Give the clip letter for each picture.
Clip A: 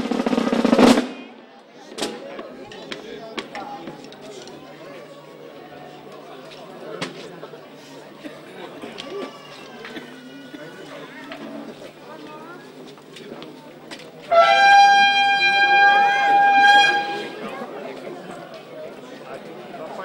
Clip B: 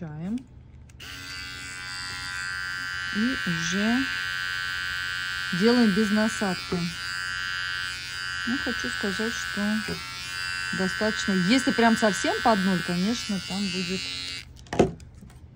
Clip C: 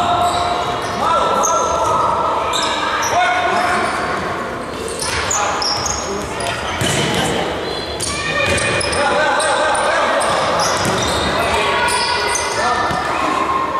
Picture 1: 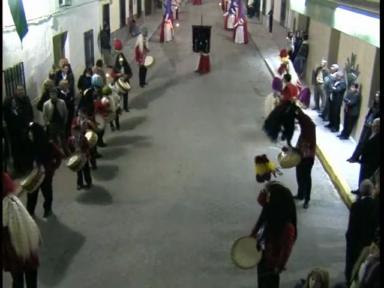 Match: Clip A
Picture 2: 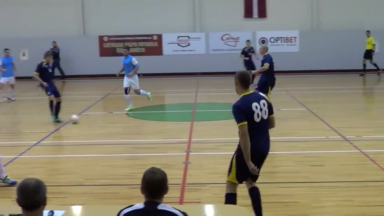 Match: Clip C